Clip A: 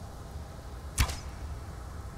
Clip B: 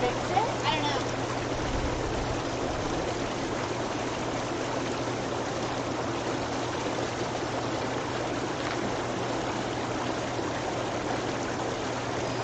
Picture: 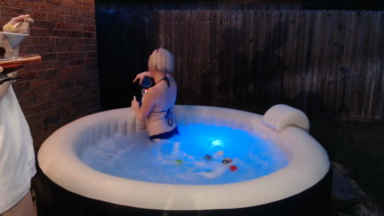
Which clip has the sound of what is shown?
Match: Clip B